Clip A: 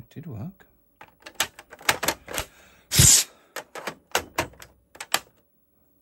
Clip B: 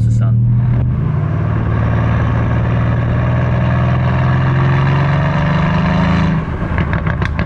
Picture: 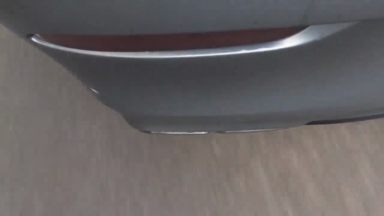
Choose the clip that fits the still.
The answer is B